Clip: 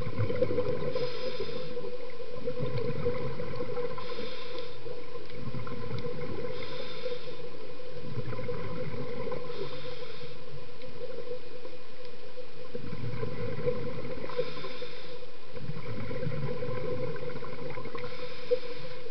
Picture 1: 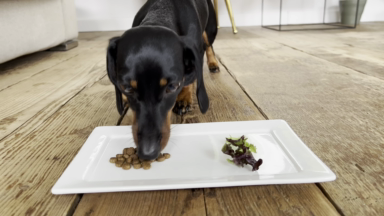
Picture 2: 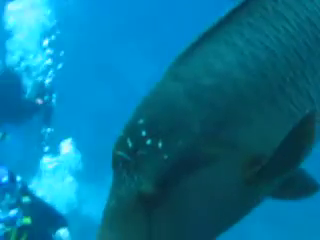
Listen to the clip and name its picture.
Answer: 2